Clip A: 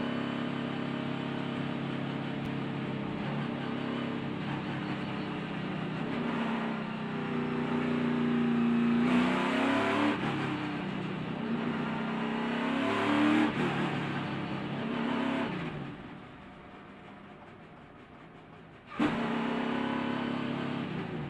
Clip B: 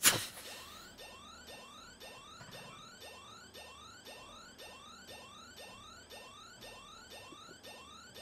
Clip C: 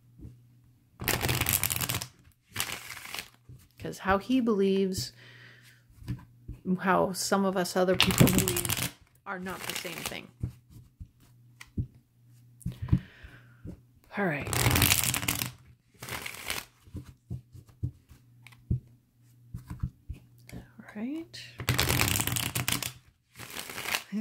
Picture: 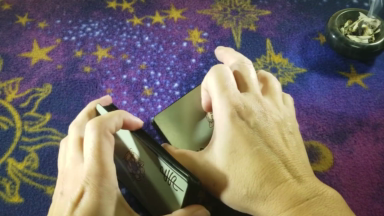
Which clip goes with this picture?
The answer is C